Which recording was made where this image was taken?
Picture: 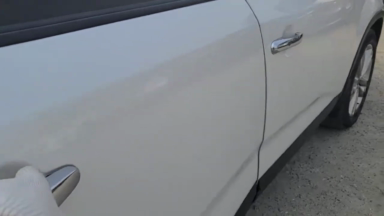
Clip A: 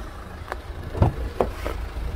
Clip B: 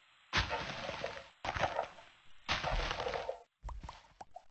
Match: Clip A